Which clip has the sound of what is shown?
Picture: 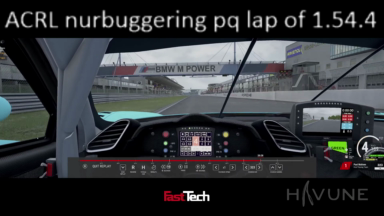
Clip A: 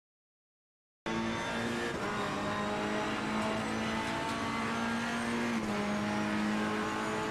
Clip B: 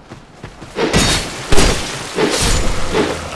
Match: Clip A